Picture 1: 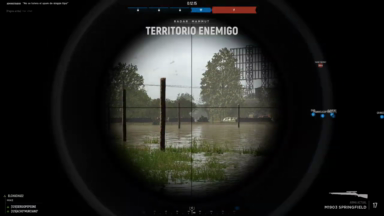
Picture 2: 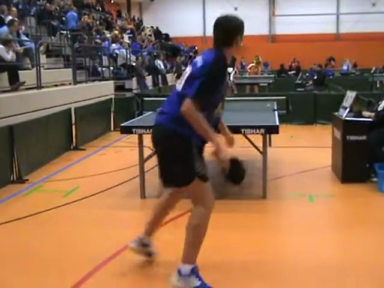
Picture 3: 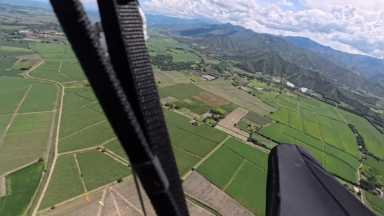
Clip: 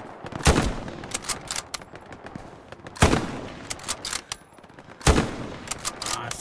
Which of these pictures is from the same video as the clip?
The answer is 1